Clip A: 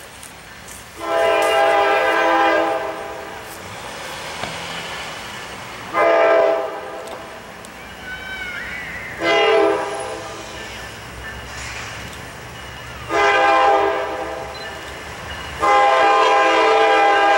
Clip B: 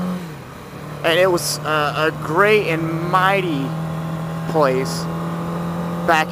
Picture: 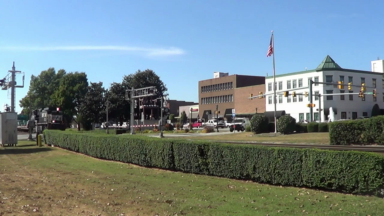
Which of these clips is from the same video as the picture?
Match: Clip A